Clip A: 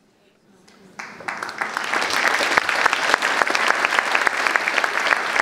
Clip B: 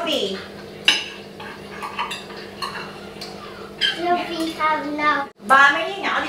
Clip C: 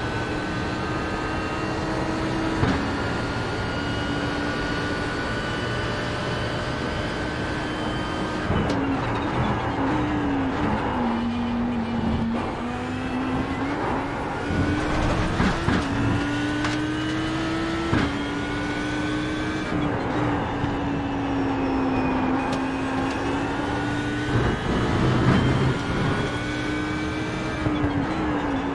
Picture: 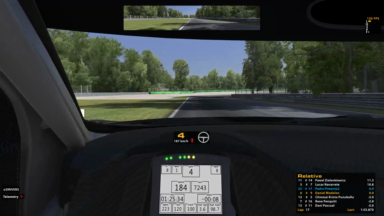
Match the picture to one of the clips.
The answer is C